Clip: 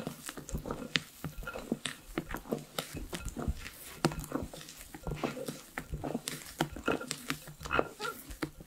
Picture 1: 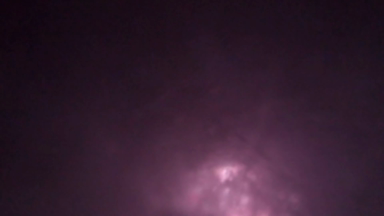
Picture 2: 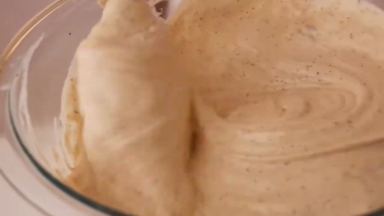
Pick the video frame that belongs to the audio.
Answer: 2